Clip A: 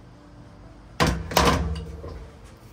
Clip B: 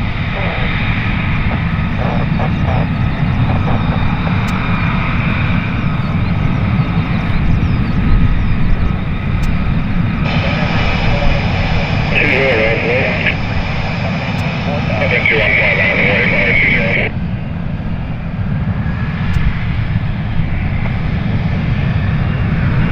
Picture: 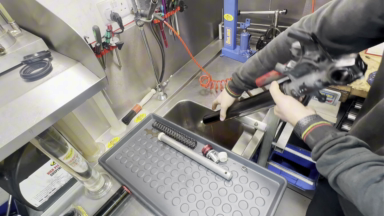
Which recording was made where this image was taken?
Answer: A